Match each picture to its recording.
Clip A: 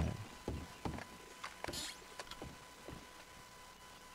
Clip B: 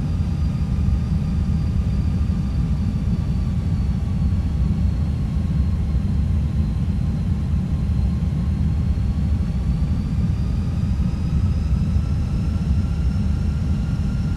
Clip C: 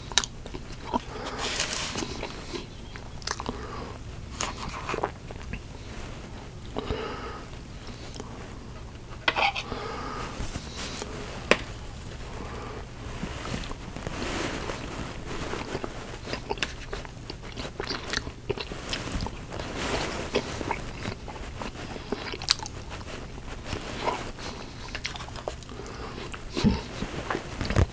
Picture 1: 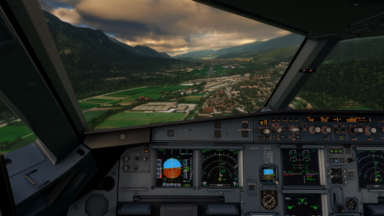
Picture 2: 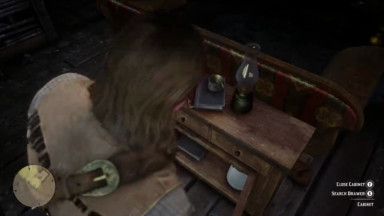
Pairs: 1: B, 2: A